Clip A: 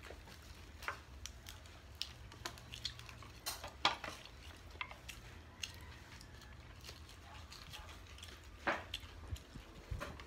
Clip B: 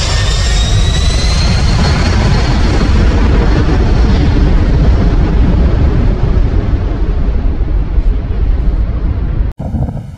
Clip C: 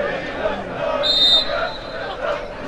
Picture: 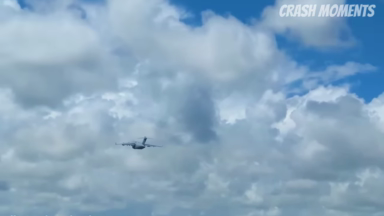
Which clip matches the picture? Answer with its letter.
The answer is B